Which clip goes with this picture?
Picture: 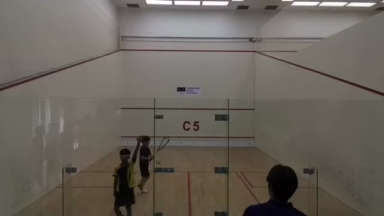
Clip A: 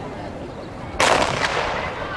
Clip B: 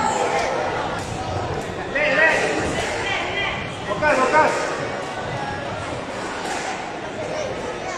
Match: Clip B